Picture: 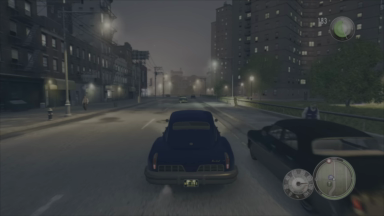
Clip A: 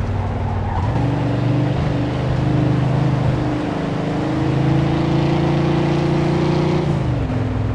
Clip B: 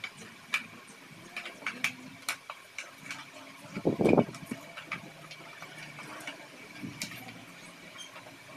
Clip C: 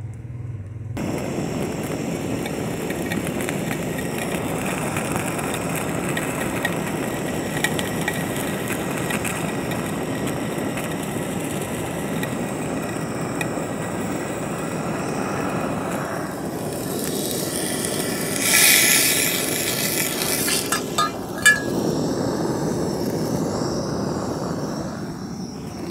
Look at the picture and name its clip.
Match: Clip A